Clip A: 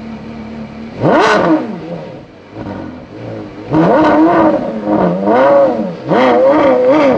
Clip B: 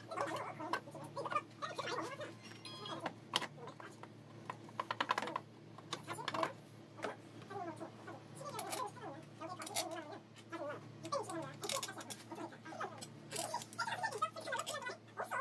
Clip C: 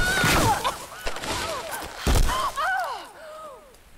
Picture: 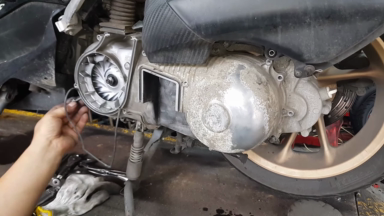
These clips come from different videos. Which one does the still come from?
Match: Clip B